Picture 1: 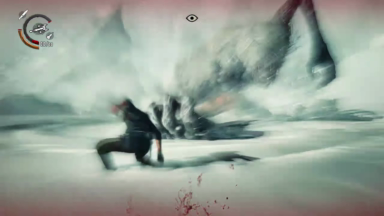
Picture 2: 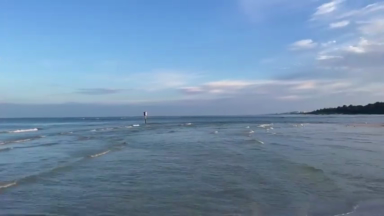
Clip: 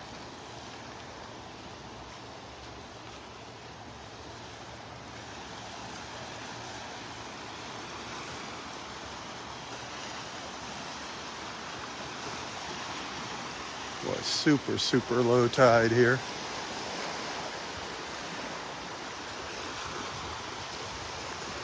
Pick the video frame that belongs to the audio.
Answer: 2